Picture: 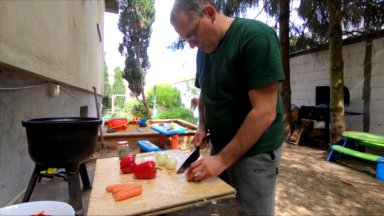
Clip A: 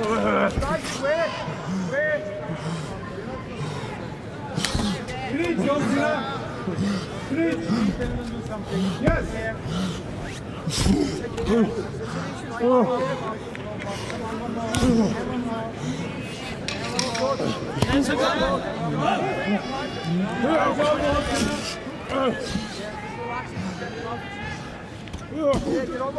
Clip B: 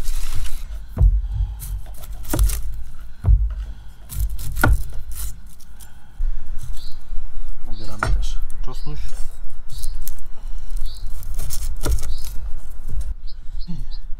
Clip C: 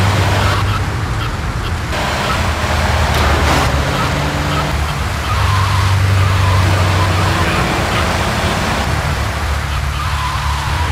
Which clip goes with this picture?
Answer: B